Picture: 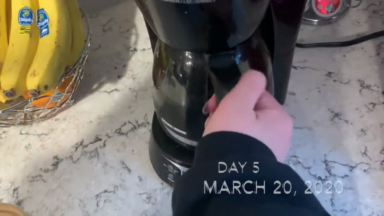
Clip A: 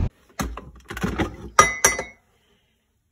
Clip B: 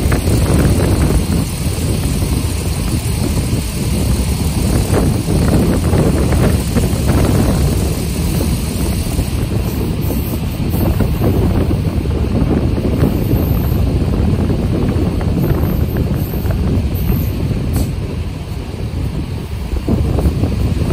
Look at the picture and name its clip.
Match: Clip A